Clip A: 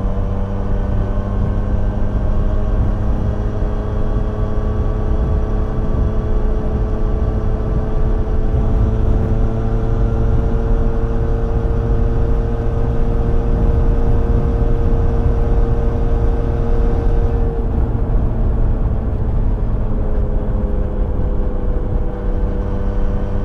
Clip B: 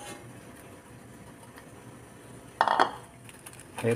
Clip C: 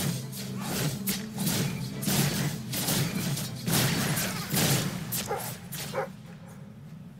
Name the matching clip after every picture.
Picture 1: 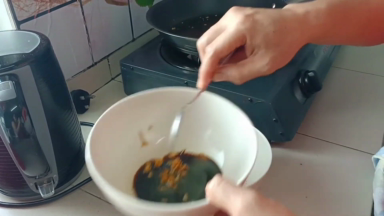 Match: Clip B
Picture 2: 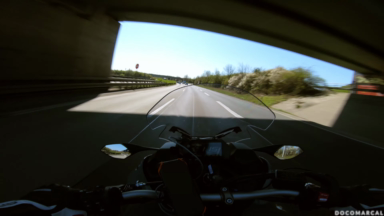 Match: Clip A